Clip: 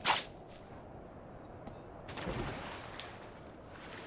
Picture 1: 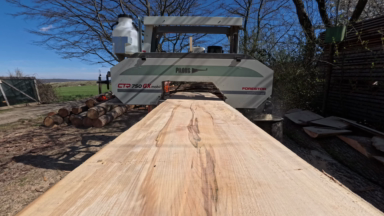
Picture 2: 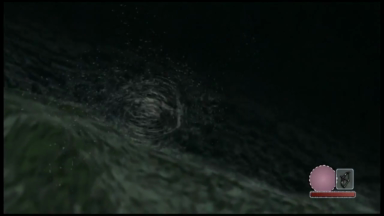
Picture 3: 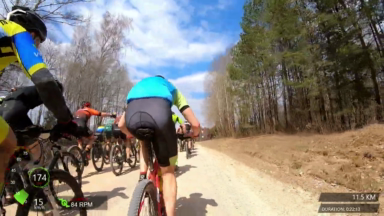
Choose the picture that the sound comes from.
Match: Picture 2